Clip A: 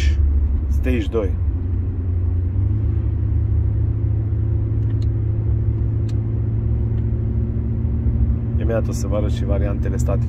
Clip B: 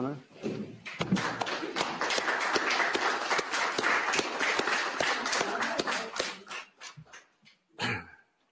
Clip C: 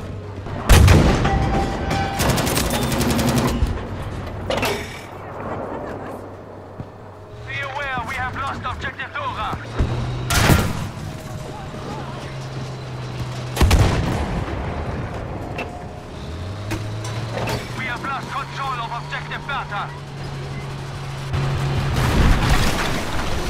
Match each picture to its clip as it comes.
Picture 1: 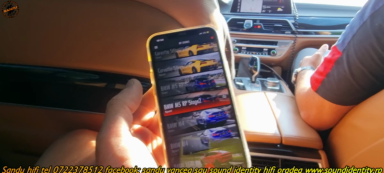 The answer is A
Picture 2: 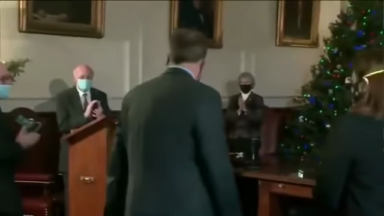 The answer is B